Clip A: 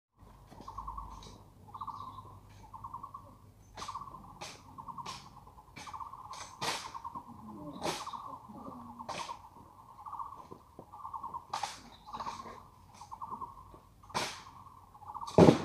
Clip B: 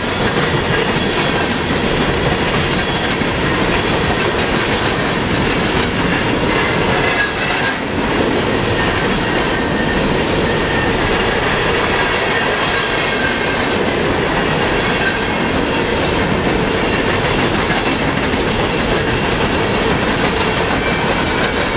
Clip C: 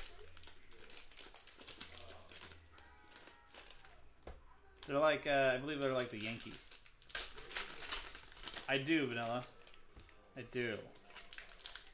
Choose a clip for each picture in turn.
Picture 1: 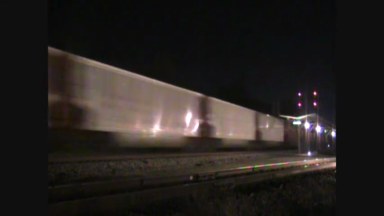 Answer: B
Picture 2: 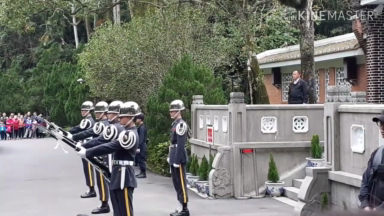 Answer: A